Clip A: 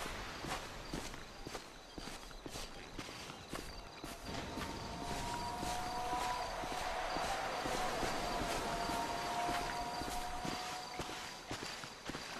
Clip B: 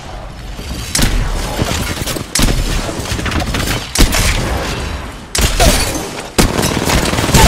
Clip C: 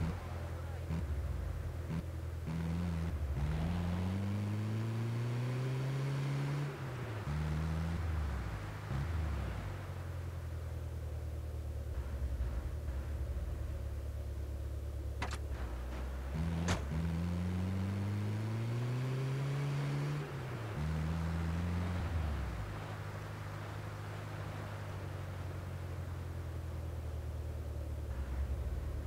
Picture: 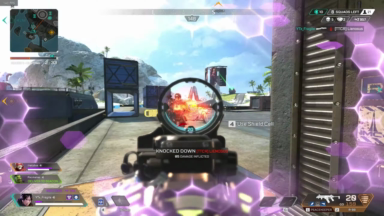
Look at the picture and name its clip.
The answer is B